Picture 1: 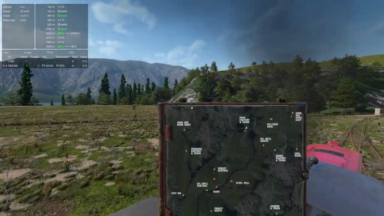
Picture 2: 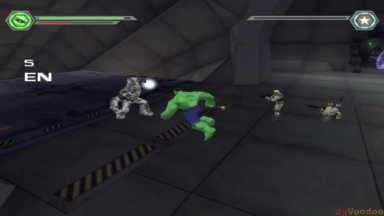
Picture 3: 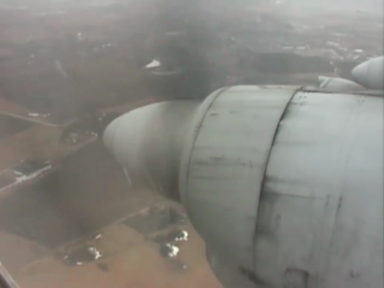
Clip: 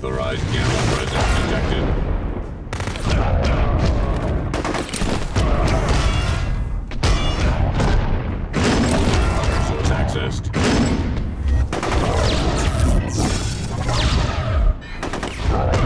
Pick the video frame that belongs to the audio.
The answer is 2